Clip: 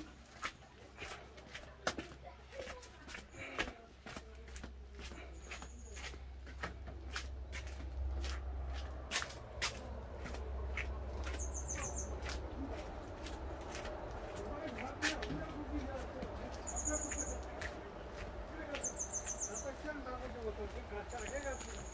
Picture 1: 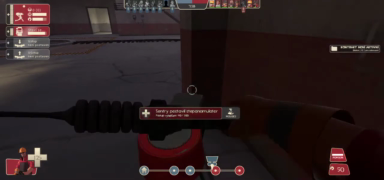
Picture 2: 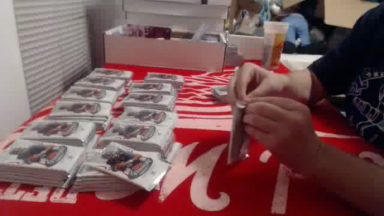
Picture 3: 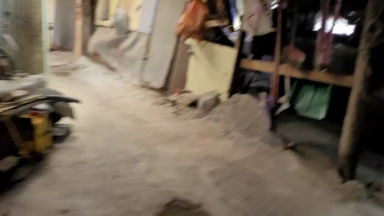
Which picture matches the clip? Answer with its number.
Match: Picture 3